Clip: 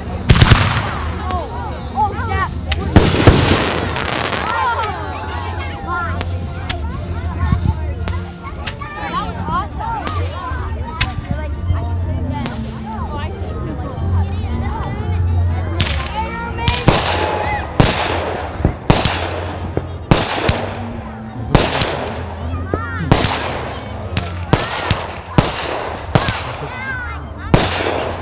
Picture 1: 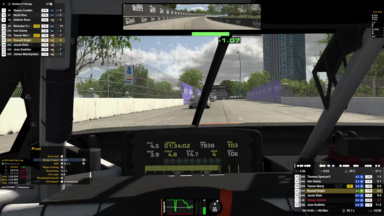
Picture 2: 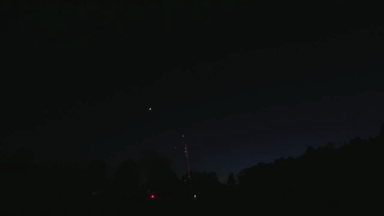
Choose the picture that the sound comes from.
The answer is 2